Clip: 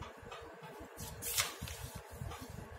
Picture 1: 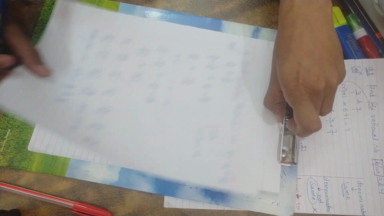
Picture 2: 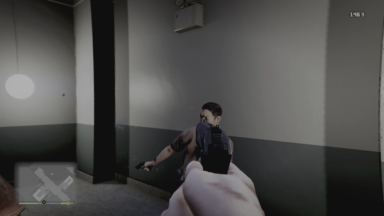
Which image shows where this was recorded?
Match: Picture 1